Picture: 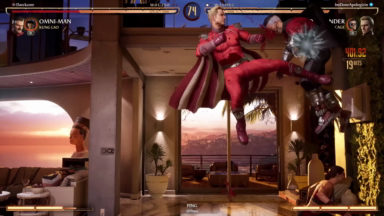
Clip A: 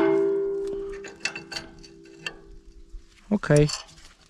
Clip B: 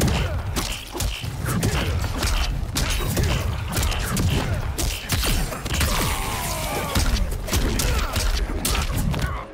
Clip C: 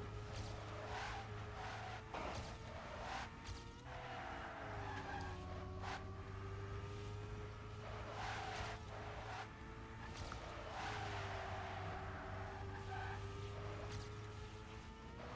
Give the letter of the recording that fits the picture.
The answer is B